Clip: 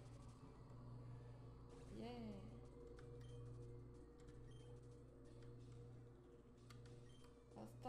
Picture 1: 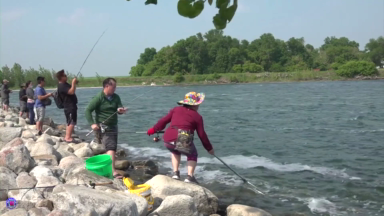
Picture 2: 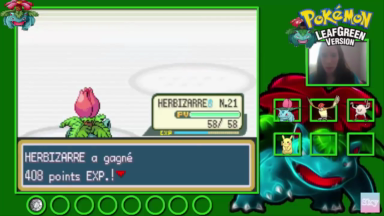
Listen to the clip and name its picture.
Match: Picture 2